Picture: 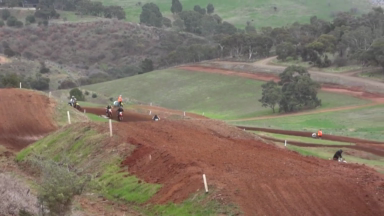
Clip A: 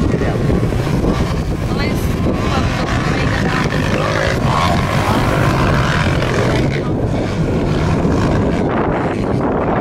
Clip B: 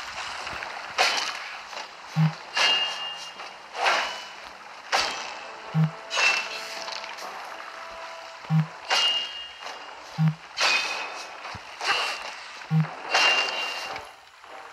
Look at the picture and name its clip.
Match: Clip A